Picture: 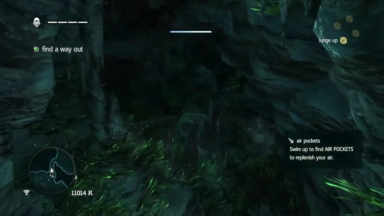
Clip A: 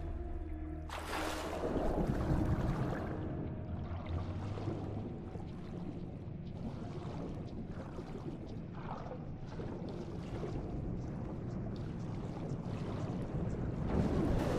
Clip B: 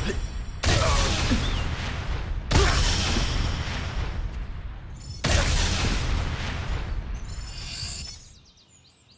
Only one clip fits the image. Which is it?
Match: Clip A